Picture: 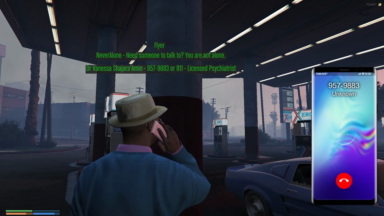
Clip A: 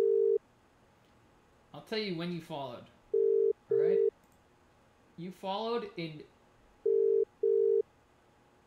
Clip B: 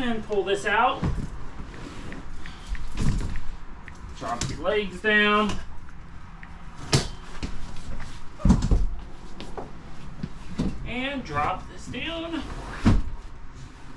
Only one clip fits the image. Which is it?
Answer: A